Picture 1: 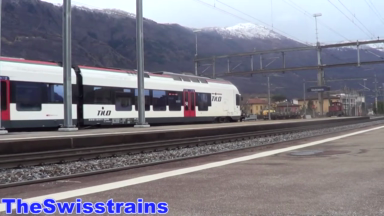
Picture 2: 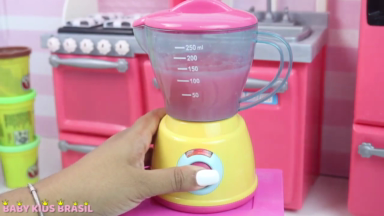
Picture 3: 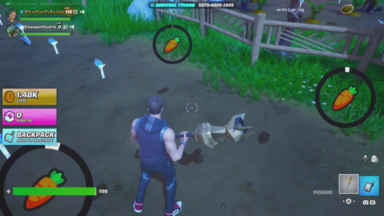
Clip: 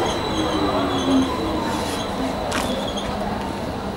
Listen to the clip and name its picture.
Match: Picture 1